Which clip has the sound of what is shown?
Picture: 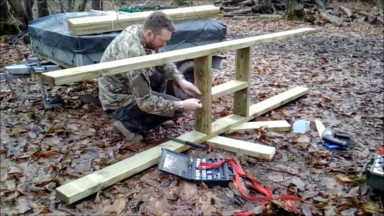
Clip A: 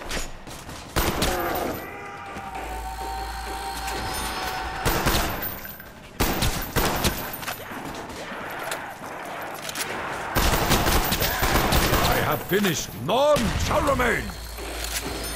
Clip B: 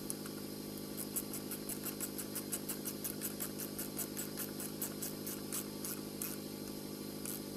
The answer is B